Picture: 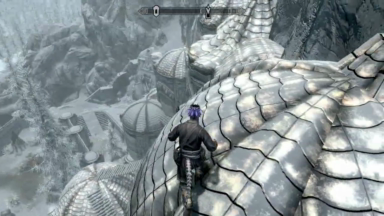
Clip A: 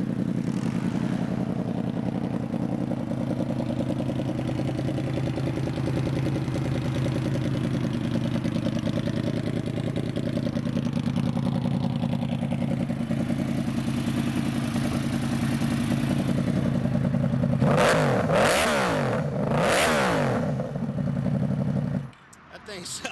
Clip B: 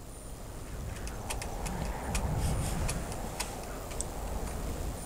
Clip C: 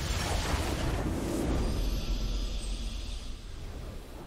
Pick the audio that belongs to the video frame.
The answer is B